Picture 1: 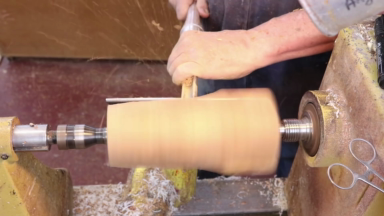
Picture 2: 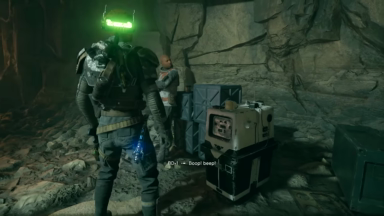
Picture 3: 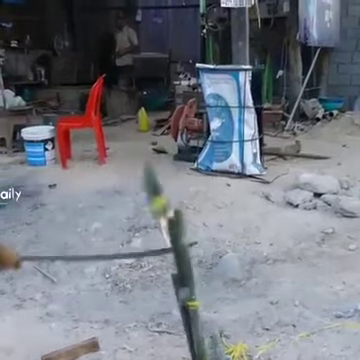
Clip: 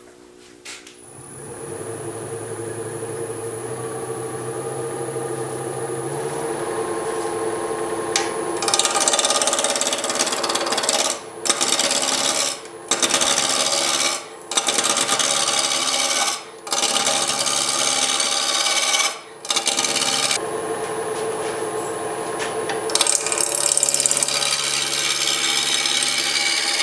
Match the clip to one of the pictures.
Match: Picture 1